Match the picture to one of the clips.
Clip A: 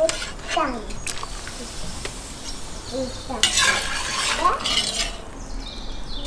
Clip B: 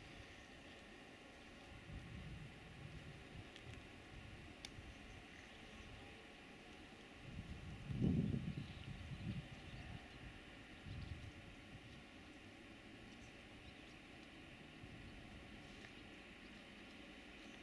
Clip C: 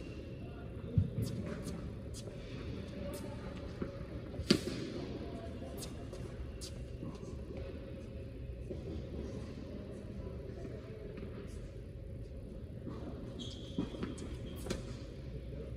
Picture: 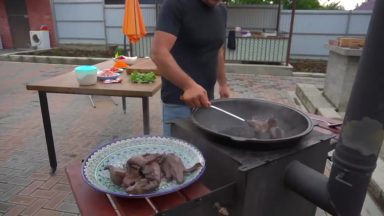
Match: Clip A